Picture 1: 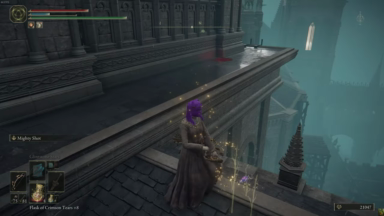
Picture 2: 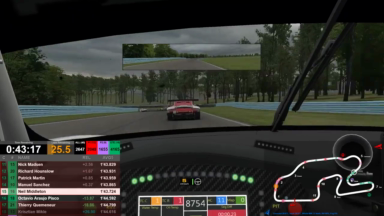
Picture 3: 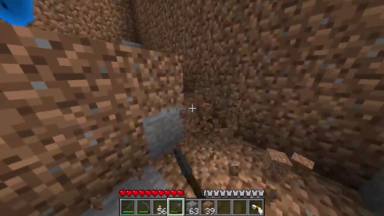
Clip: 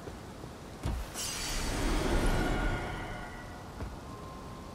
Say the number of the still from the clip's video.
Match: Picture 1